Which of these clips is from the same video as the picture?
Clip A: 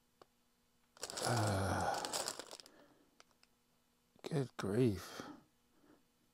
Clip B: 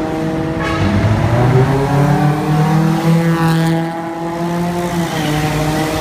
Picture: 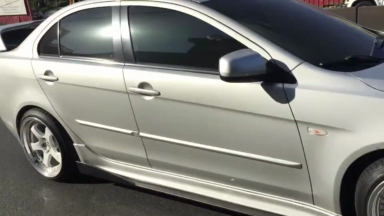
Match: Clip B